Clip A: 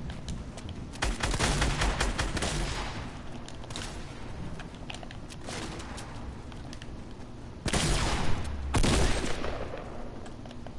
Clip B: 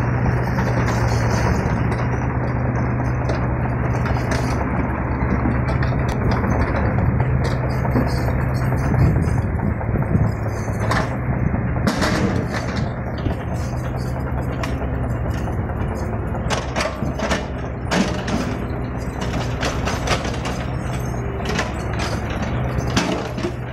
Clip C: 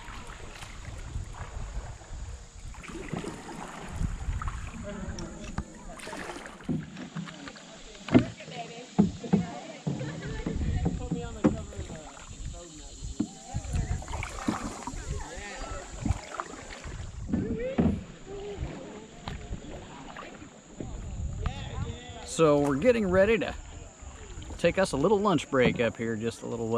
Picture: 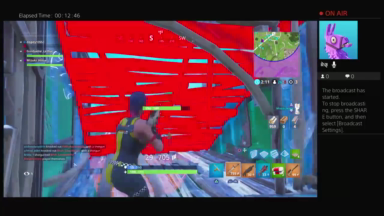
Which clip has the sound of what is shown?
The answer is A